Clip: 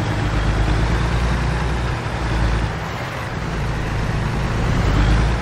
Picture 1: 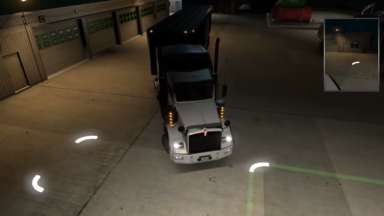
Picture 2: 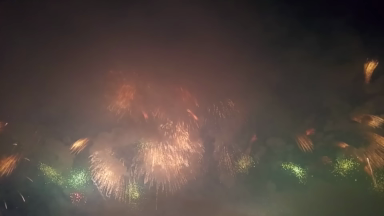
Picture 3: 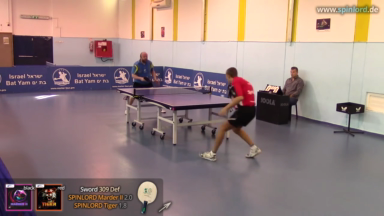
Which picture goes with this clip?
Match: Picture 1